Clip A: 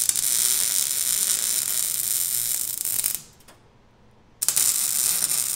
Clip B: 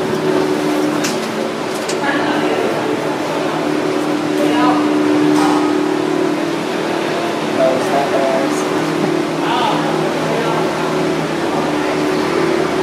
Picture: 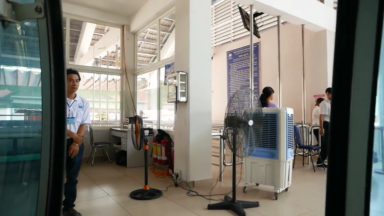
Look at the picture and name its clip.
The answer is B